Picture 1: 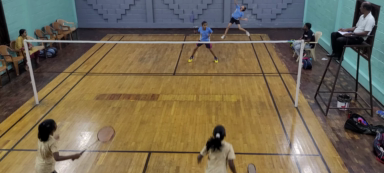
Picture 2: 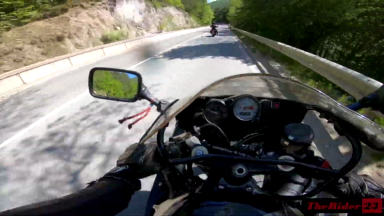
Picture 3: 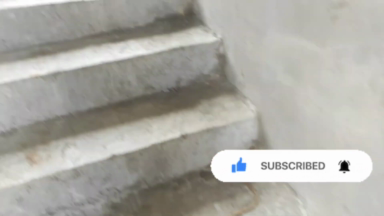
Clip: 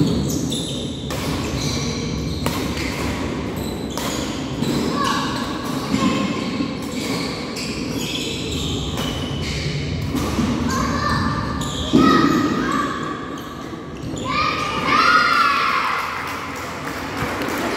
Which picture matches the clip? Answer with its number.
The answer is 1